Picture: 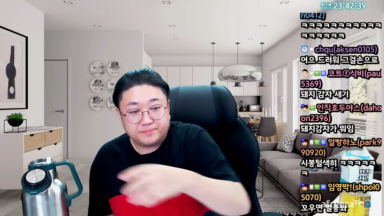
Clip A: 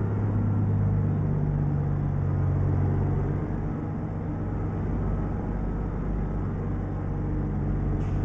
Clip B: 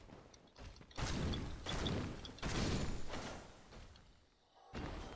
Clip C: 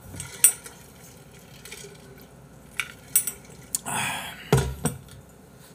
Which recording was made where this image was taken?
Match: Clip C